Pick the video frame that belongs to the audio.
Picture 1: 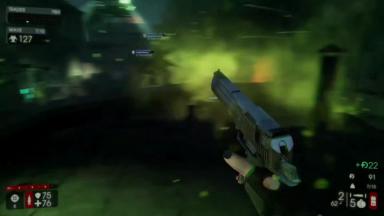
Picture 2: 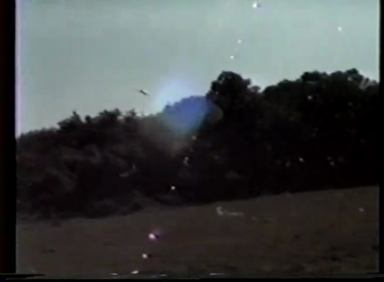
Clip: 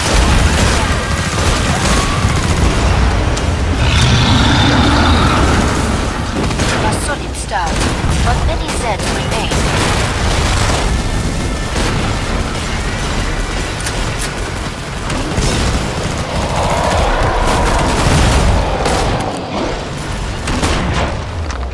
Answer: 1